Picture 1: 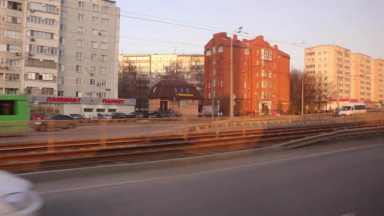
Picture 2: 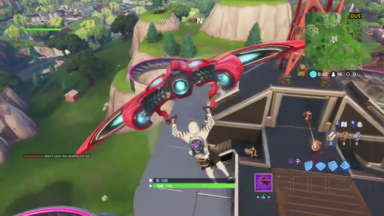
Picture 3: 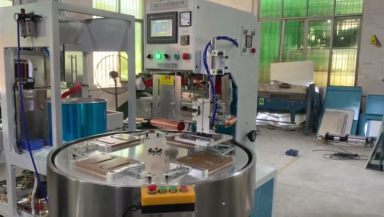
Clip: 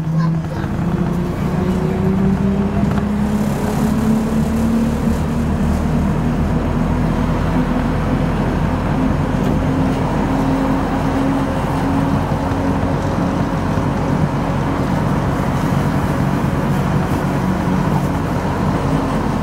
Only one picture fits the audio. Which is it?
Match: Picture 1